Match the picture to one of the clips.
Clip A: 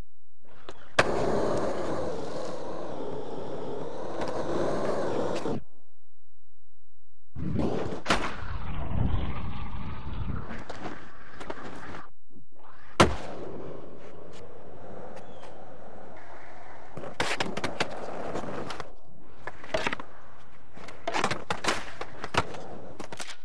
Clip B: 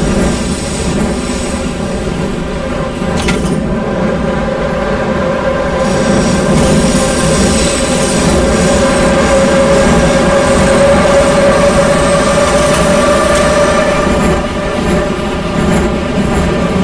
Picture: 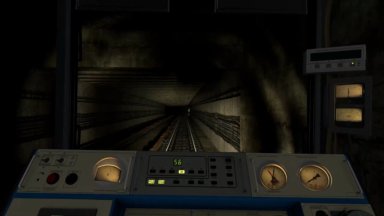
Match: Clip B